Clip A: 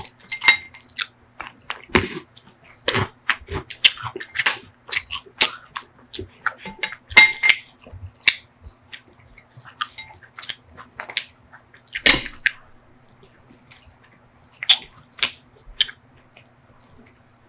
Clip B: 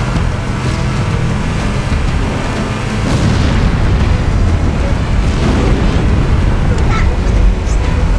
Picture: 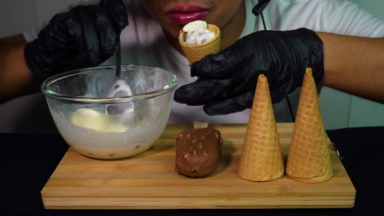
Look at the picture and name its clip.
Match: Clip A